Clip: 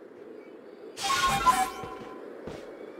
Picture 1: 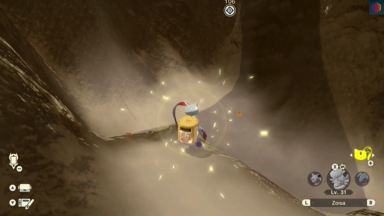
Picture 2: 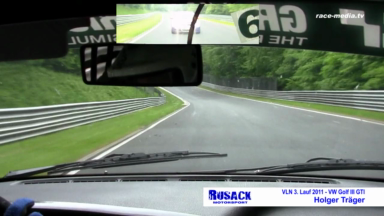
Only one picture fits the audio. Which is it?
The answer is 1